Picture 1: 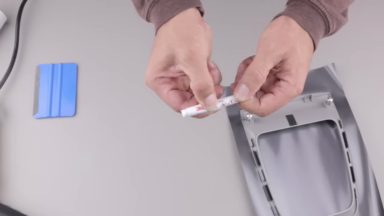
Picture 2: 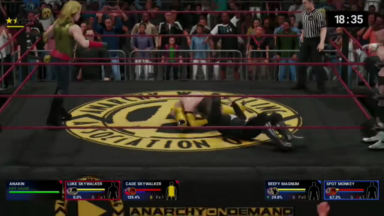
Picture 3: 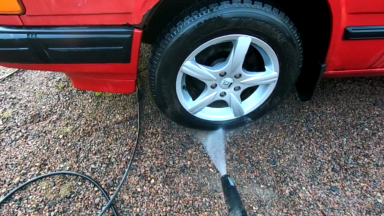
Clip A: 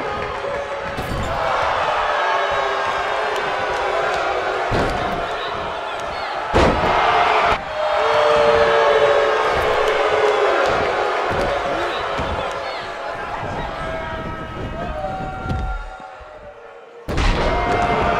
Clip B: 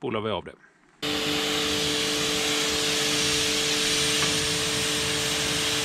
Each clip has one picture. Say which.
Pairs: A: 2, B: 3